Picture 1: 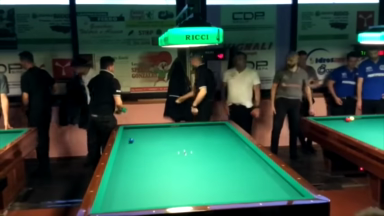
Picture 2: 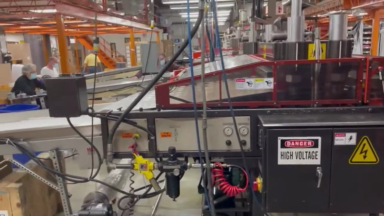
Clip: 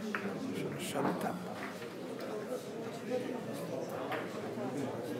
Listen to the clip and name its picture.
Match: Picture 1